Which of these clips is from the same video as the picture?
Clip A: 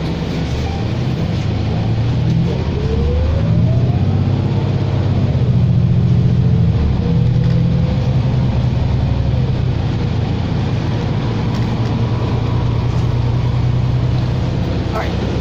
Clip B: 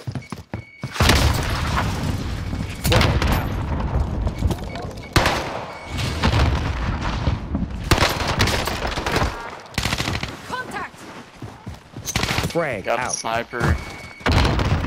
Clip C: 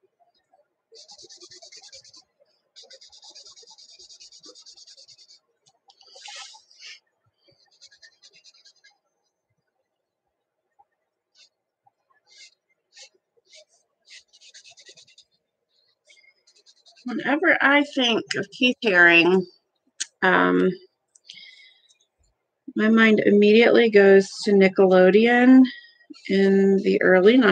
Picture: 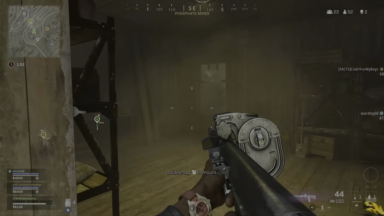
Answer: B